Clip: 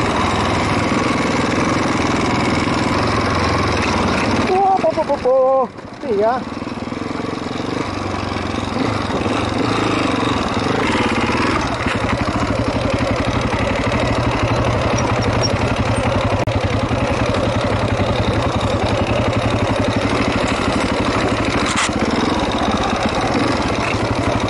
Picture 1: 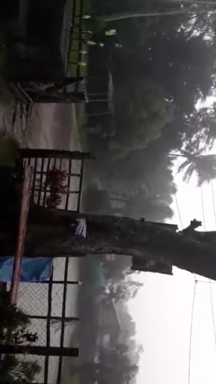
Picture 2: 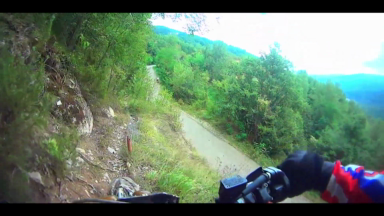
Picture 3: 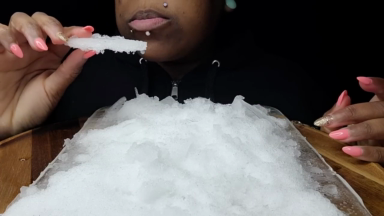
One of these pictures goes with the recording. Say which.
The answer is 2